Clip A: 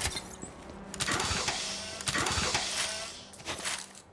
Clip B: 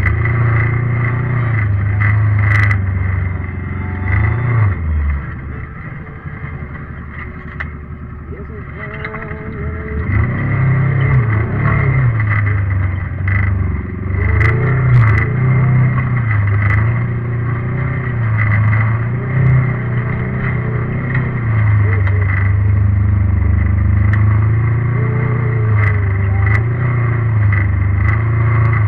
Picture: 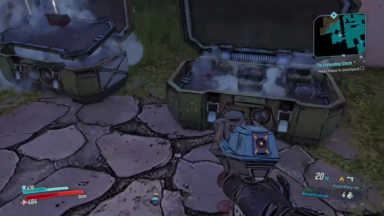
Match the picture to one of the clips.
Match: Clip A